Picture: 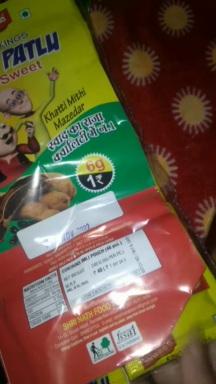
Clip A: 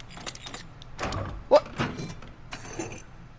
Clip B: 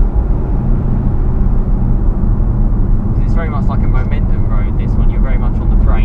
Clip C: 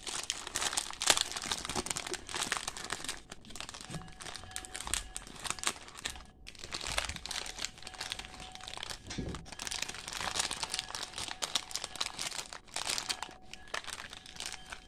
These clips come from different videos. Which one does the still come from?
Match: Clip C